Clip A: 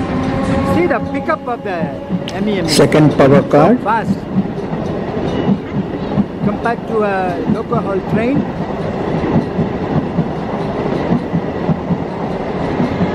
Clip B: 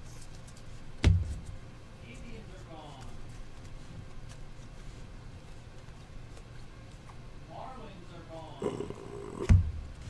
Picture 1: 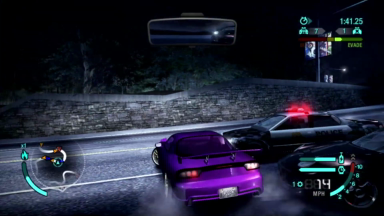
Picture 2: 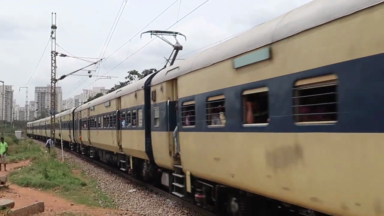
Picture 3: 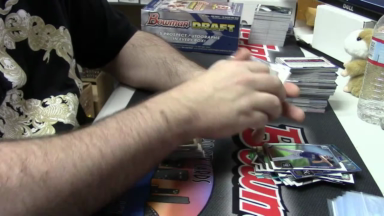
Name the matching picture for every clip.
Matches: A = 2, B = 3